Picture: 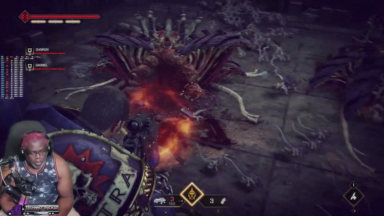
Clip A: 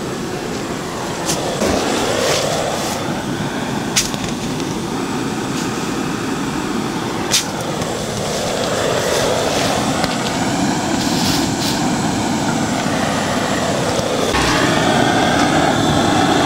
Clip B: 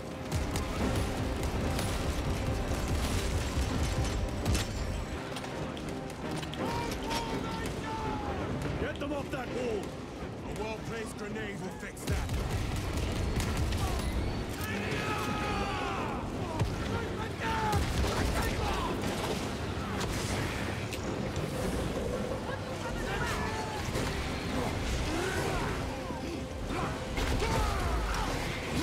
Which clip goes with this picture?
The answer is B